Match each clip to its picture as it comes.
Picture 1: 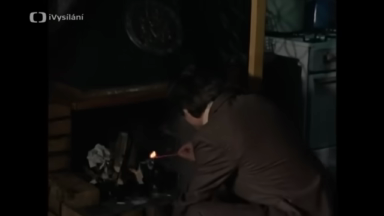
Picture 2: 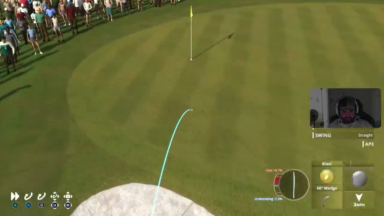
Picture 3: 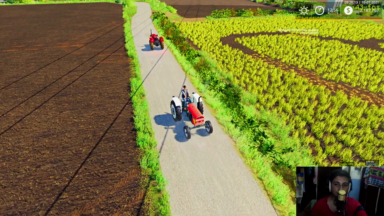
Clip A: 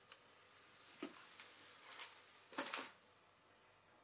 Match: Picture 1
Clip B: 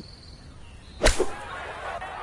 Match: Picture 2